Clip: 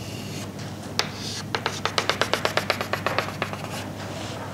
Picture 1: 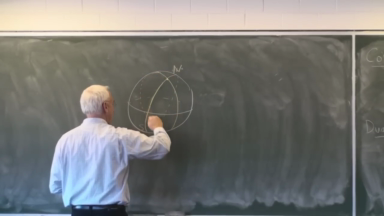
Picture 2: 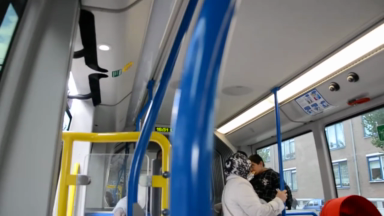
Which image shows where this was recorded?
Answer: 1